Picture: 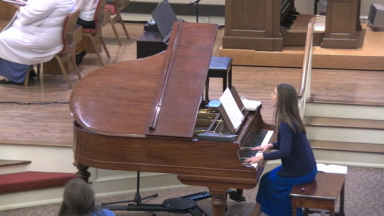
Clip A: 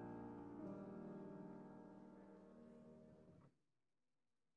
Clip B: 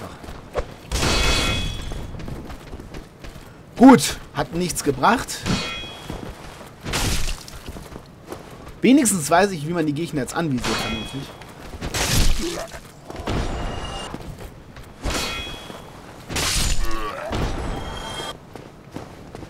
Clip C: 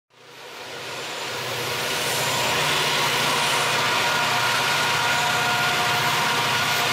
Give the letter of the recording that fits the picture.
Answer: A